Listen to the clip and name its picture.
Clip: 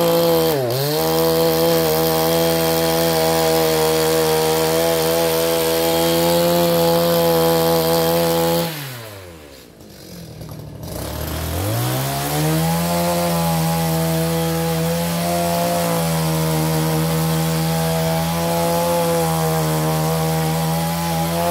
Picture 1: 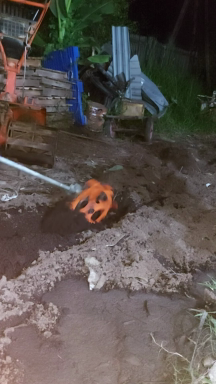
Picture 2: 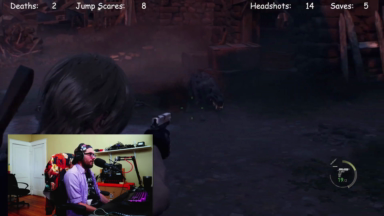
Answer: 1